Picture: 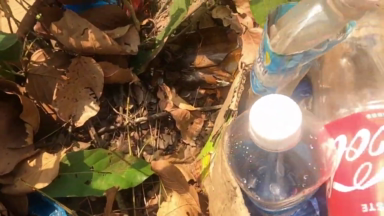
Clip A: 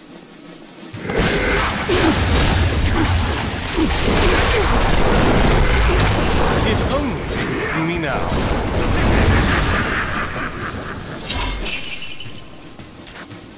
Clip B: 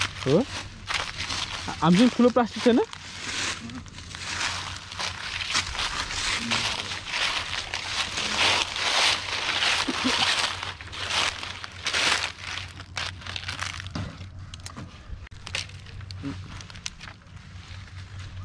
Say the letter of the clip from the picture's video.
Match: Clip B